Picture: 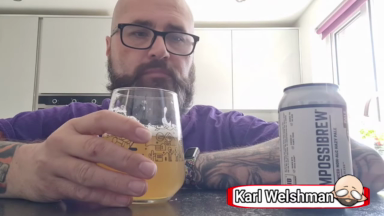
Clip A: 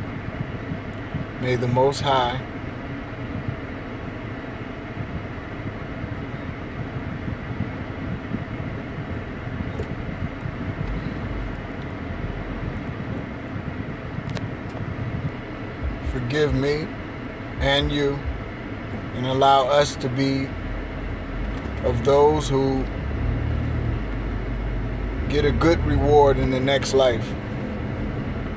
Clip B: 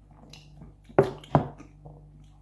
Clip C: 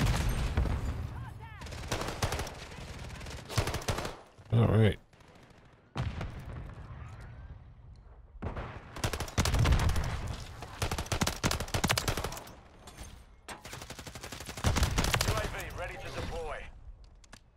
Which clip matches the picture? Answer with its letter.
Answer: B